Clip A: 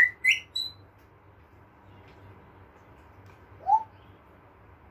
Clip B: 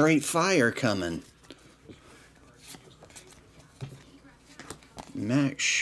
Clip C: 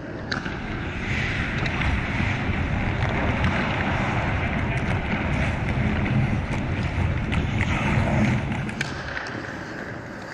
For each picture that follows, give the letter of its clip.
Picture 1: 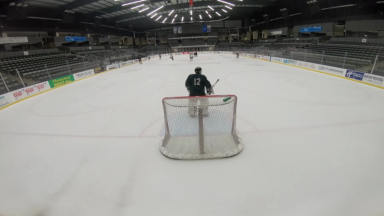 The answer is C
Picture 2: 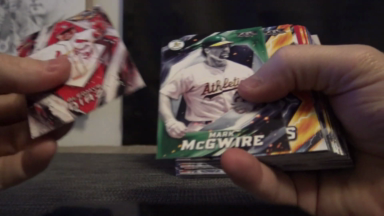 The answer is B